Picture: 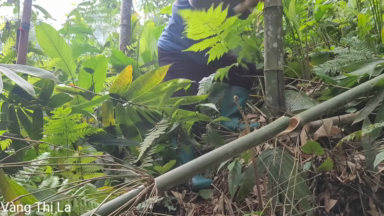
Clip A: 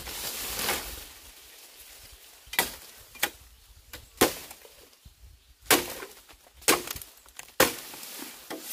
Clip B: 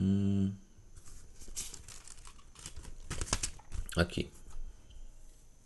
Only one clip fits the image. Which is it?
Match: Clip A